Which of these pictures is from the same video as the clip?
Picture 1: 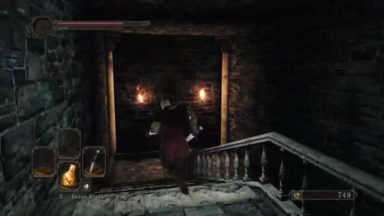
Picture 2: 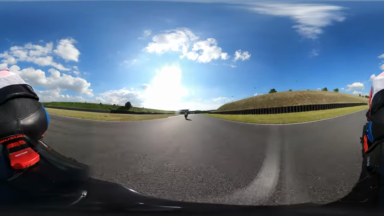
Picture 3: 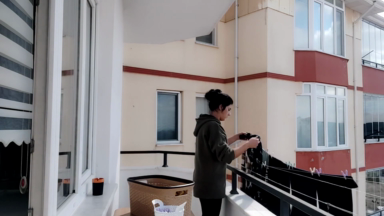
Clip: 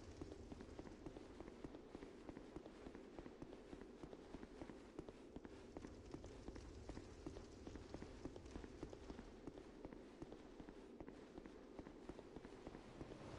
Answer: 1